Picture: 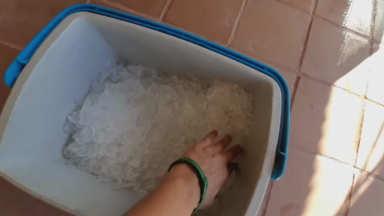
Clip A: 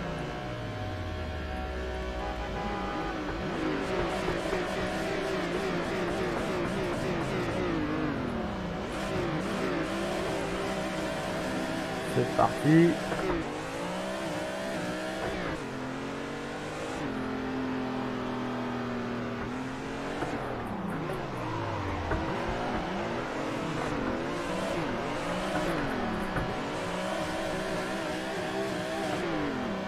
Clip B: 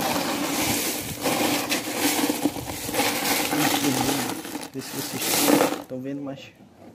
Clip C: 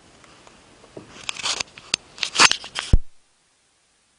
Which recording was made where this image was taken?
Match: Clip B